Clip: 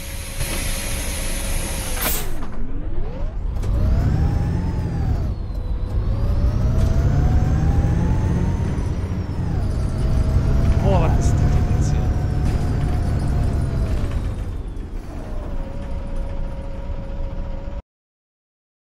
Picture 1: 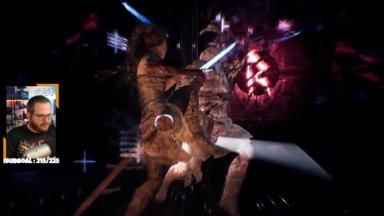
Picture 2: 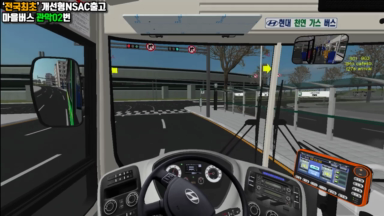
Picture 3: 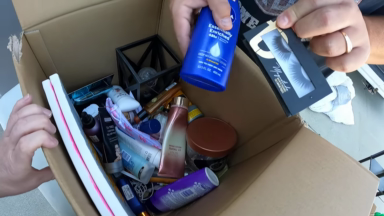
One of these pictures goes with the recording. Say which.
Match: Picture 2